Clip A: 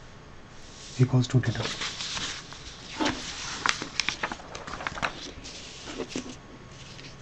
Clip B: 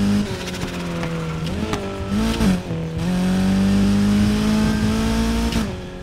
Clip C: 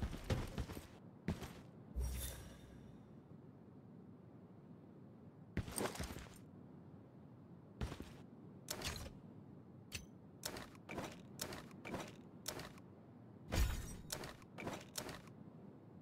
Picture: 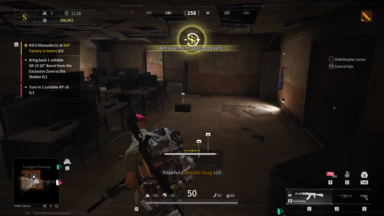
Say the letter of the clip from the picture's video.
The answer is C